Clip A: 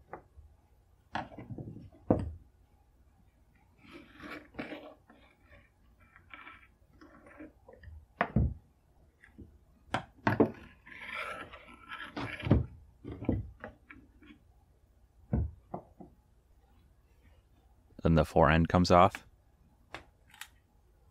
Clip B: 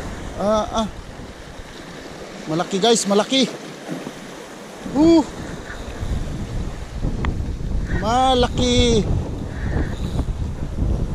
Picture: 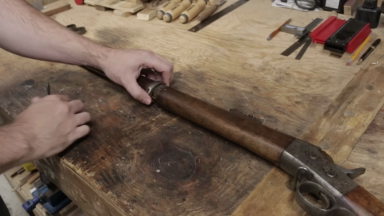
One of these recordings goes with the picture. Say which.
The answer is A